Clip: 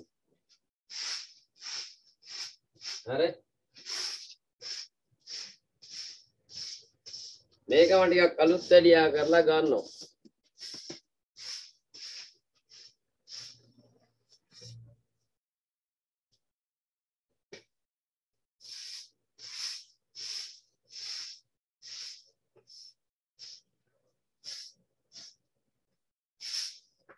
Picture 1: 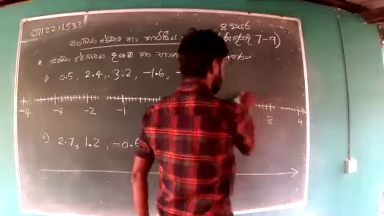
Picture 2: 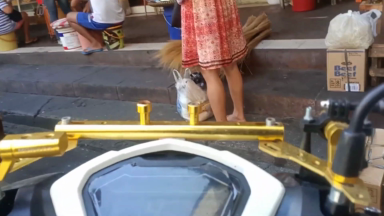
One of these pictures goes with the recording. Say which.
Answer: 1